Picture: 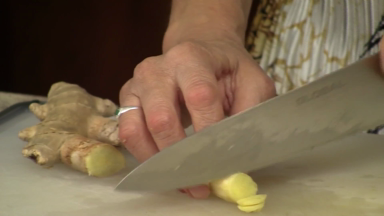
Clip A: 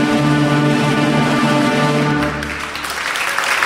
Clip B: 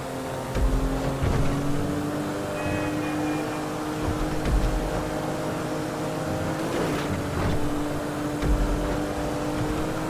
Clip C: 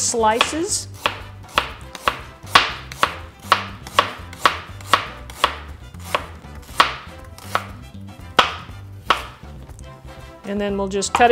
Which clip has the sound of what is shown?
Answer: C